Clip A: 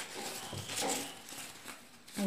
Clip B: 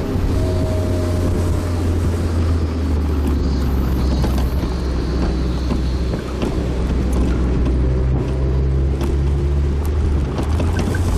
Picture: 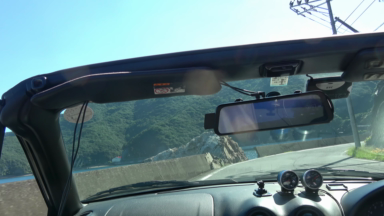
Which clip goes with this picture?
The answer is B